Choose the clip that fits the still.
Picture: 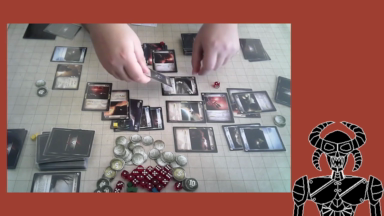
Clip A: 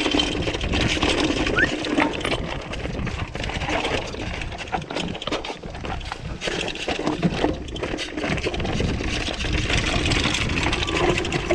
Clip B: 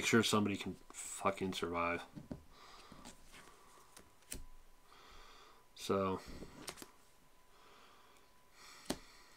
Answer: B